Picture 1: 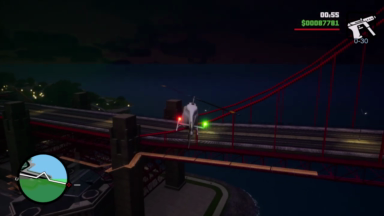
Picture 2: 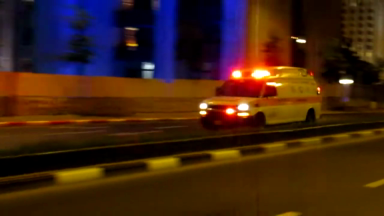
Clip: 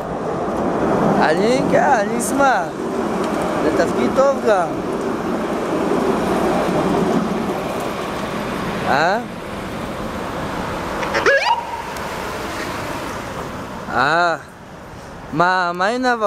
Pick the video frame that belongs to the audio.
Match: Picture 2